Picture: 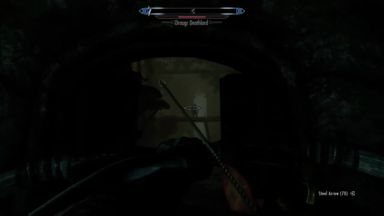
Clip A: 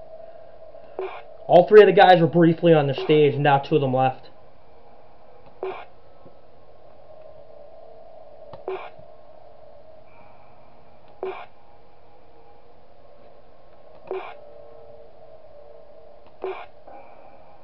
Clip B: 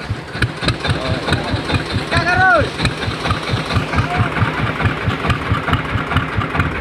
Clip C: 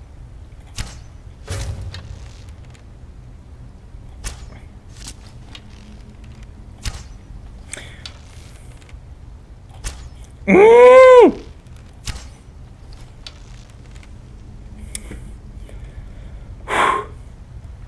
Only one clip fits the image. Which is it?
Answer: C